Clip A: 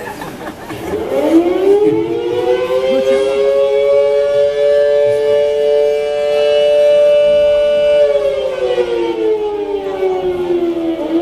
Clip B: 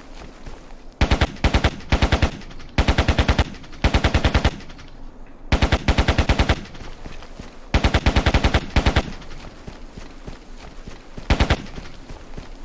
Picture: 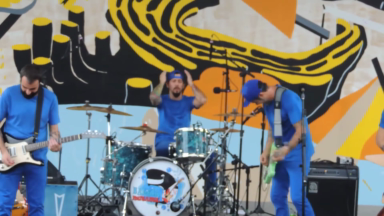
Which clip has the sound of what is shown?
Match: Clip A